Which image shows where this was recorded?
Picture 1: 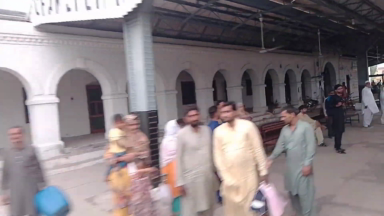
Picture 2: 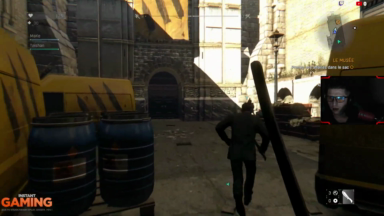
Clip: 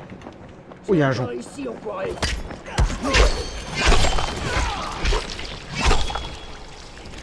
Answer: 2